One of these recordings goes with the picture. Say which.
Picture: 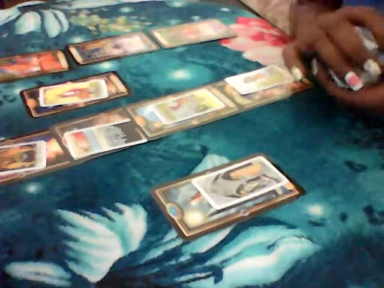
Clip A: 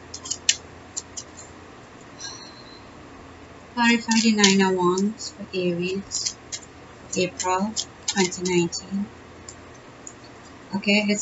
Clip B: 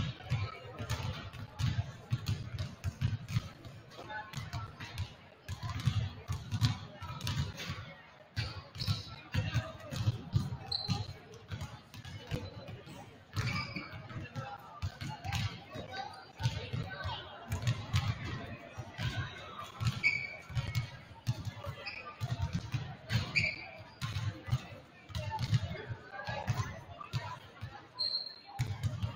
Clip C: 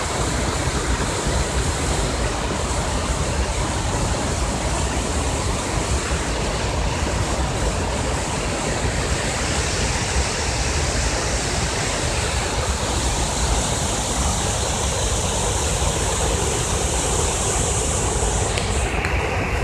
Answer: A